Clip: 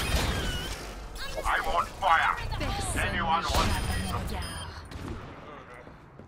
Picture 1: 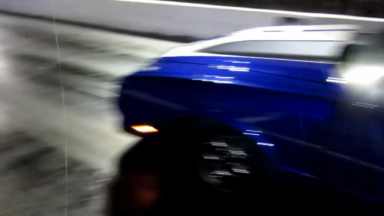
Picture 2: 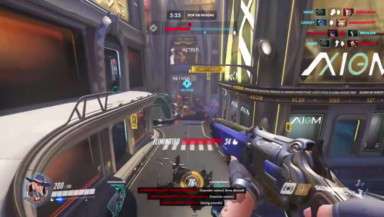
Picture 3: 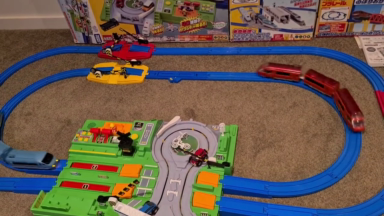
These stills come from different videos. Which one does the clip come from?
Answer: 2